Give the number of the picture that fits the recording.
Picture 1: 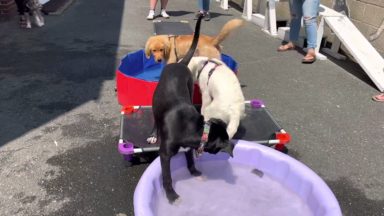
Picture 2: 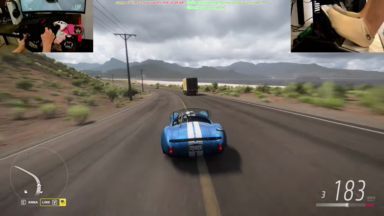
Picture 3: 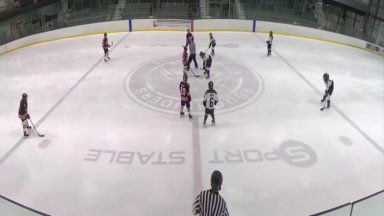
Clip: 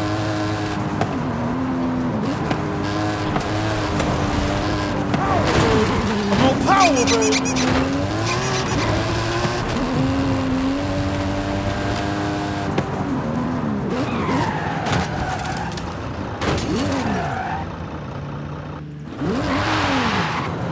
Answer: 2